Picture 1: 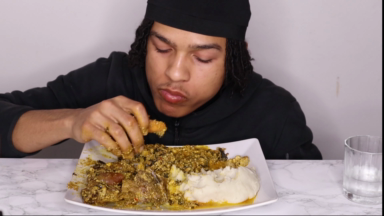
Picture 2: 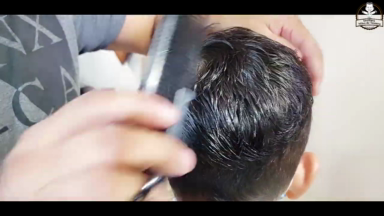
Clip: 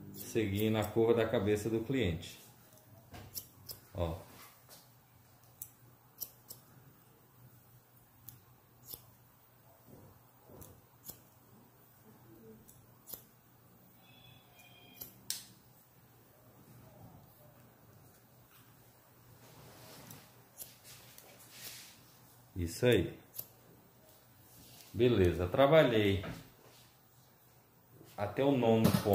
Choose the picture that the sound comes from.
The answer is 2